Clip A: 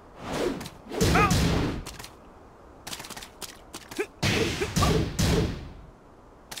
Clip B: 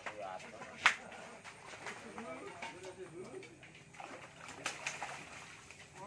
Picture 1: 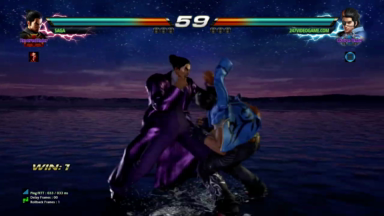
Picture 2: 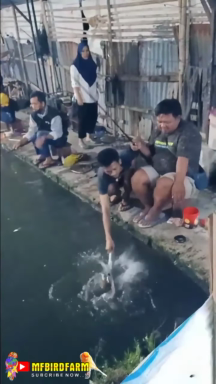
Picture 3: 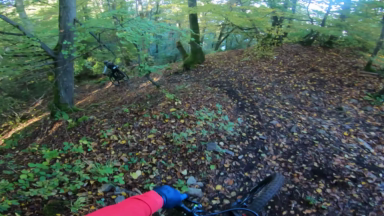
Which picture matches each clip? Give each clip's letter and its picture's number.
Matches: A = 1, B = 2